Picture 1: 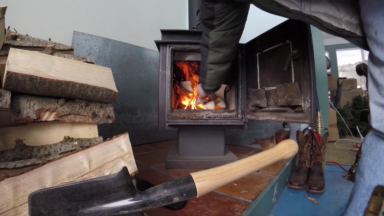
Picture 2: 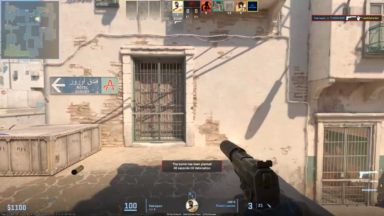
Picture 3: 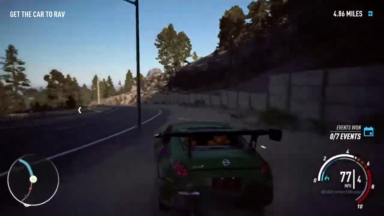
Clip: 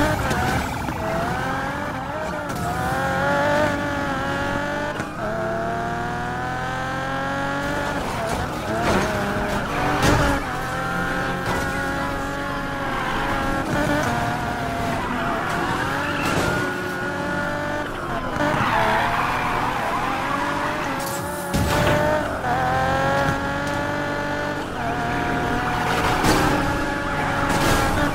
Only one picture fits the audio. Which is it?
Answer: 3